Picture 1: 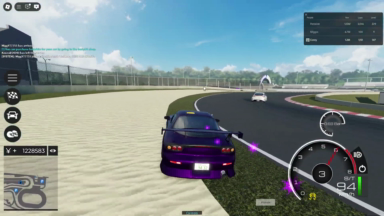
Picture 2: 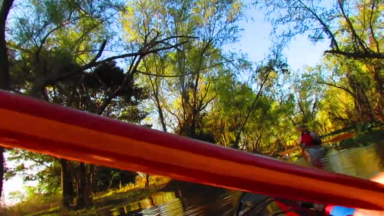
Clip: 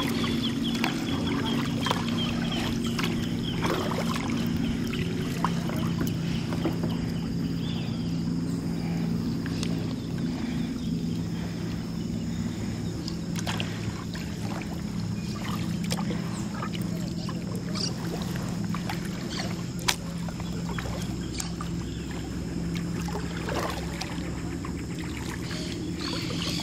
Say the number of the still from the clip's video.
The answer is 2